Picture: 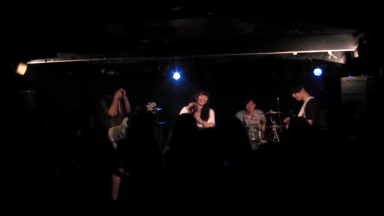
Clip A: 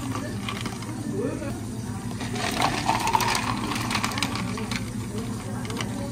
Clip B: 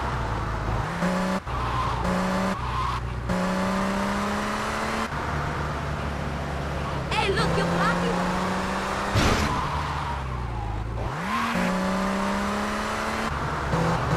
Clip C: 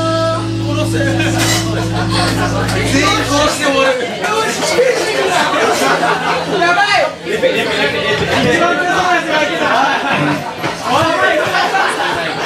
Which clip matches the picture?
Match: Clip C